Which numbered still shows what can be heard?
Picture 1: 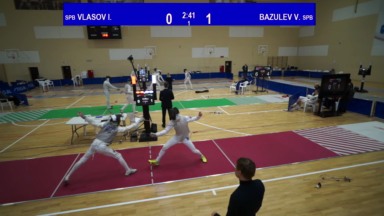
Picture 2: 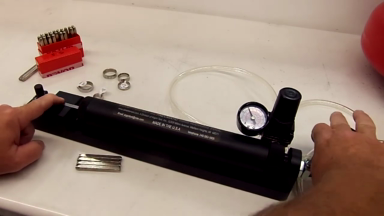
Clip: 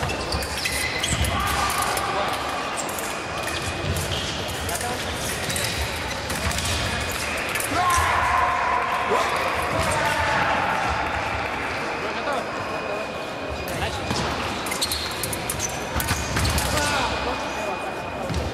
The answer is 1